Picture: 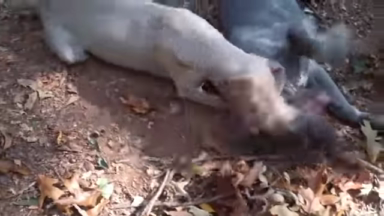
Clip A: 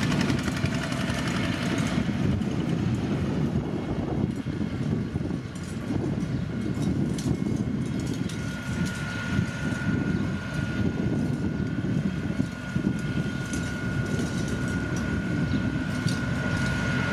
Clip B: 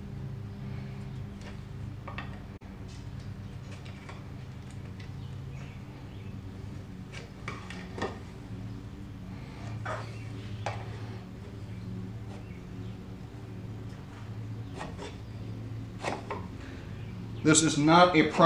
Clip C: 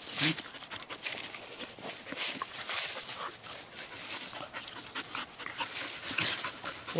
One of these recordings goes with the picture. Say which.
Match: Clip C